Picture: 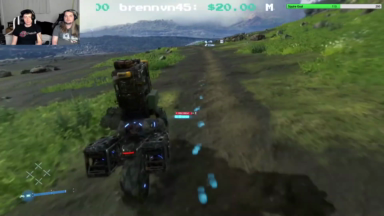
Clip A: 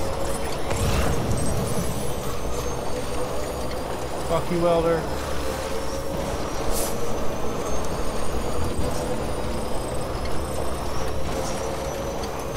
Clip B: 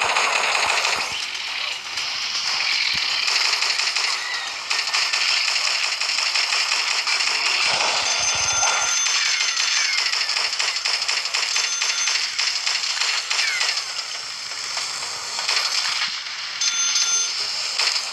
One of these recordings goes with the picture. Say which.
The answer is A